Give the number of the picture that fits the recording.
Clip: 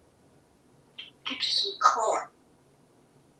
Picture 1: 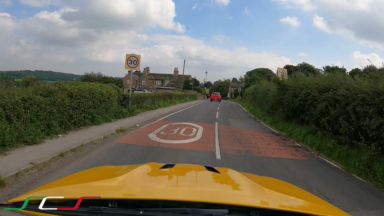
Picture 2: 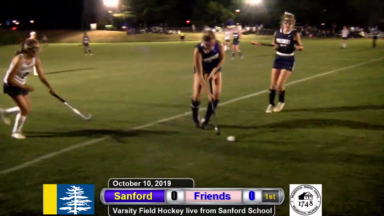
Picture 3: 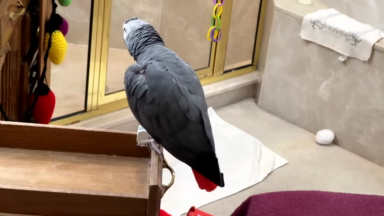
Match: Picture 3